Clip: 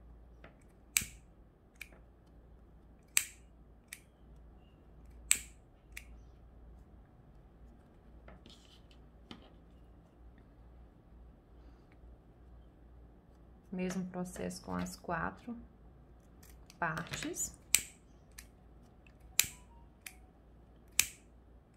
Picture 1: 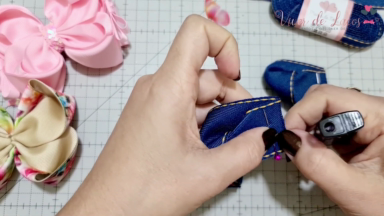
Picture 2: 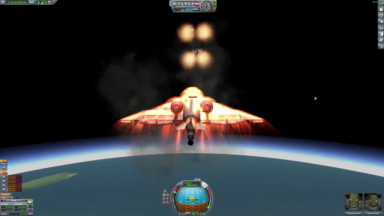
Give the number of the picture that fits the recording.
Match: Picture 1